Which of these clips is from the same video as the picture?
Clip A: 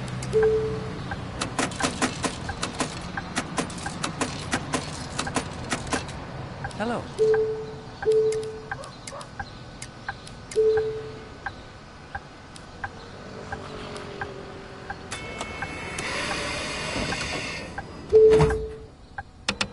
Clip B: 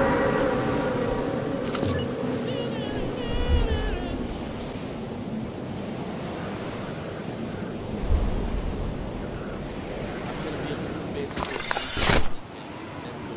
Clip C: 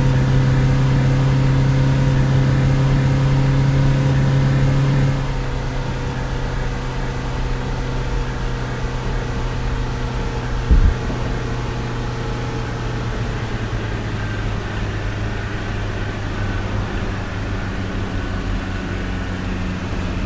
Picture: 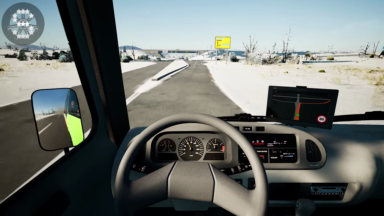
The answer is C